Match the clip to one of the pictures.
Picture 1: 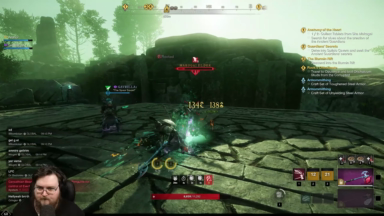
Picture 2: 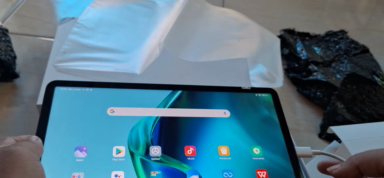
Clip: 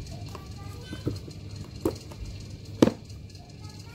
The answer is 2